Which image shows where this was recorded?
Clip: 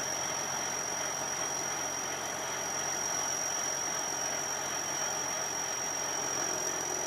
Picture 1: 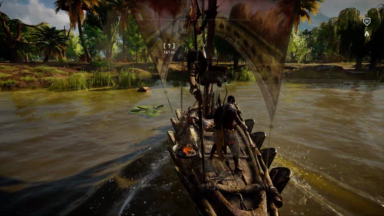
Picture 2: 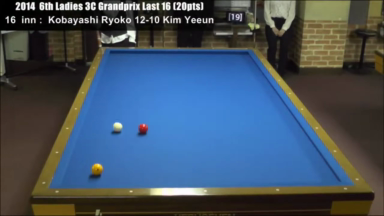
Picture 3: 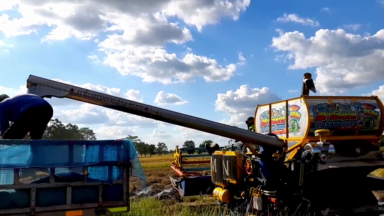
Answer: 3